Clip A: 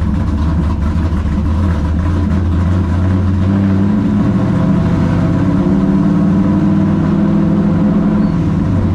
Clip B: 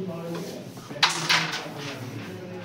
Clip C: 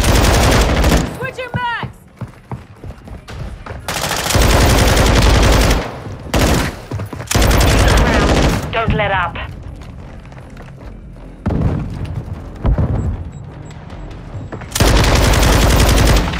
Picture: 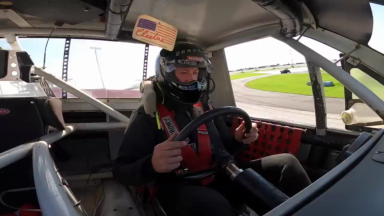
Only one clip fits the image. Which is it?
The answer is A